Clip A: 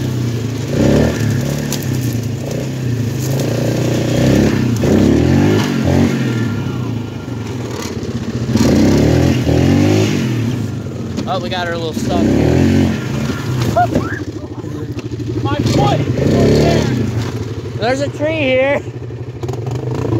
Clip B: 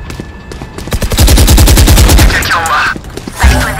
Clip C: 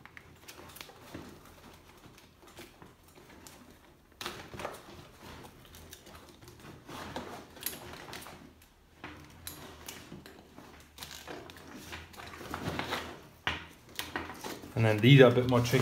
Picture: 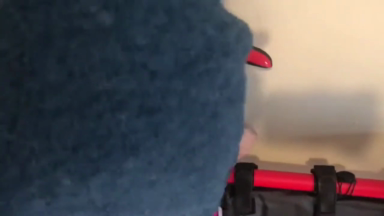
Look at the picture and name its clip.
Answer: C